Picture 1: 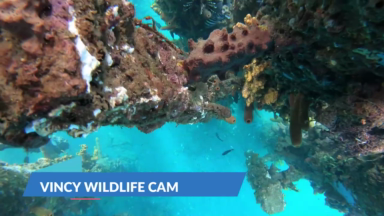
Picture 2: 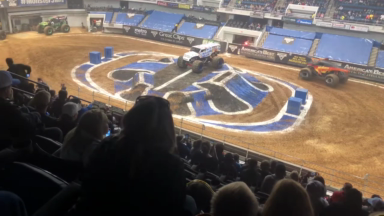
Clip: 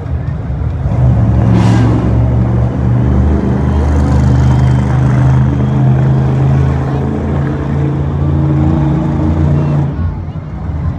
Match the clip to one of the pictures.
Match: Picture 2